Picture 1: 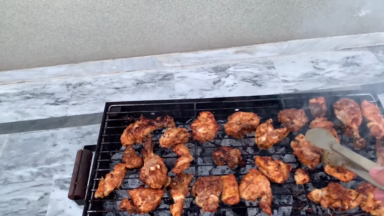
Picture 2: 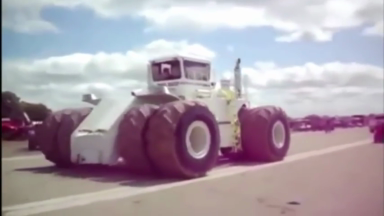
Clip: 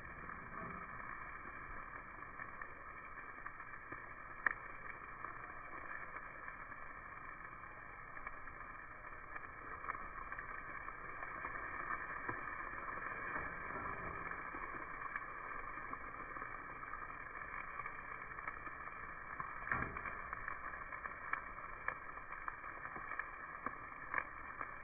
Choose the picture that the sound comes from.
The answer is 1